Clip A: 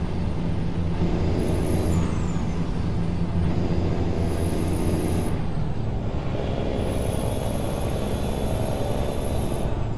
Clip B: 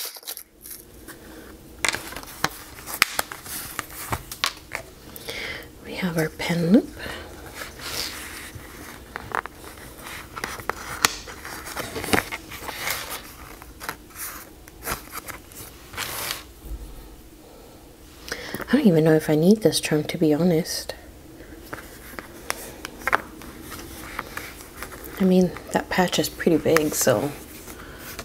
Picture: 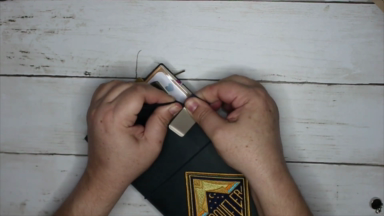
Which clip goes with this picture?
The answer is B